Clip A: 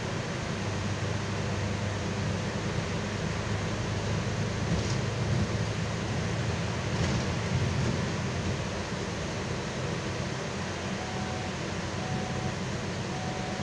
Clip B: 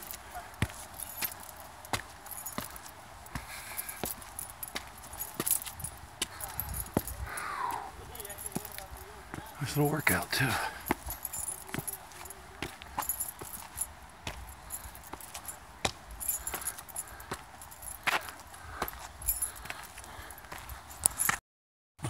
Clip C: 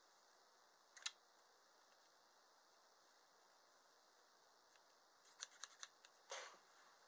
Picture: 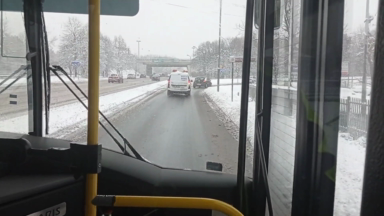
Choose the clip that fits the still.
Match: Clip A